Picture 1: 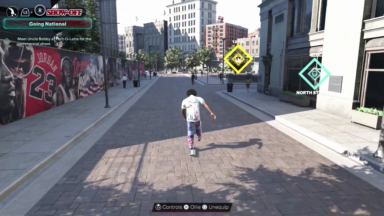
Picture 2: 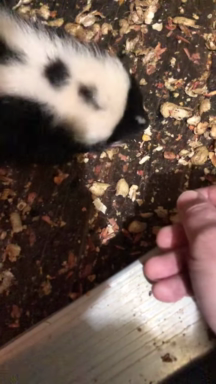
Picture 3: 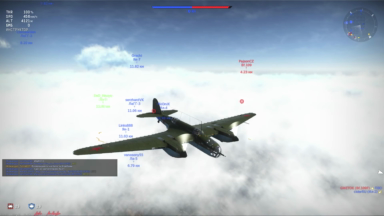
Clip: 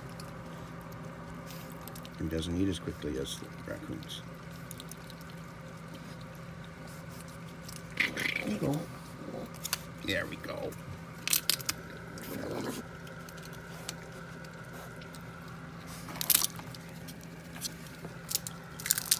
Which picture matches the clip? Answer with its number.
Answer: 2